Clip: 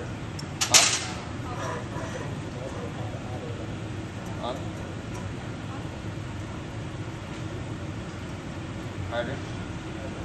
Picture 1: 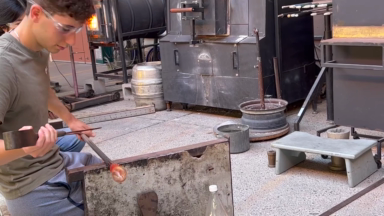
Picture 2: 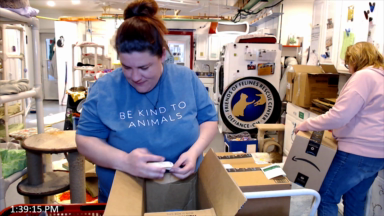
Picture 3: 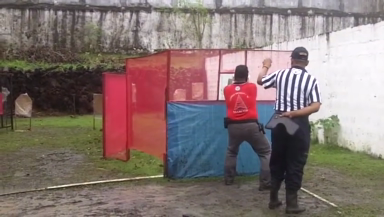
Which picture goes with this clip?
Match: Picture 1